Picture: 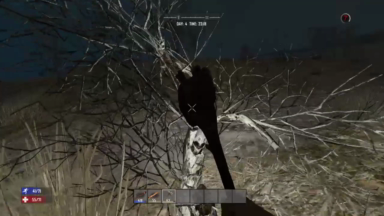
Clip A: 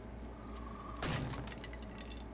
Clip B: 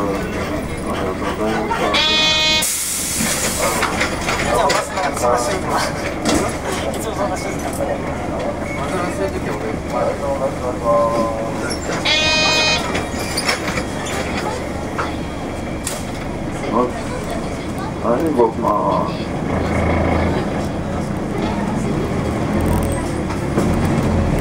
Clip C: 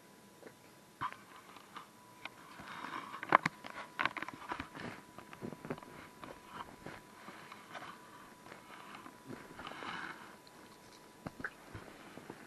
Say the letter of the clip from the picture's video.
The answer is A